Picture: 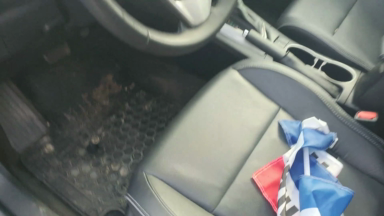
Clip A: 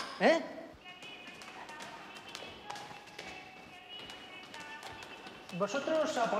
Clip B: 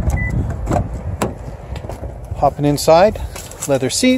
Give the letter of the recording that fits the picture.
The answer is B